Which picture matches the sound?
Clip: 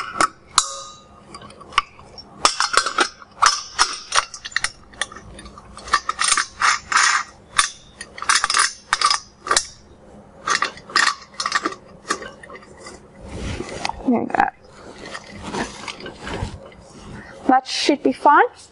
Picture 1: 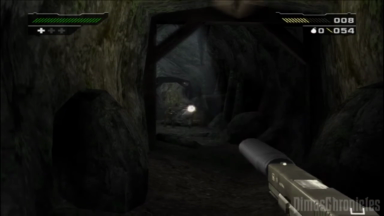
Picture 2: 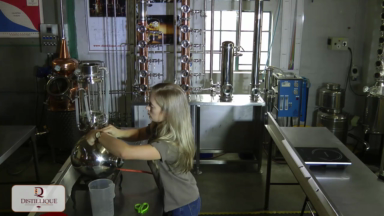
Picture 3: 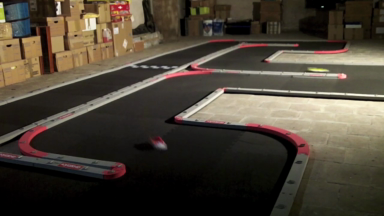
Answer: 2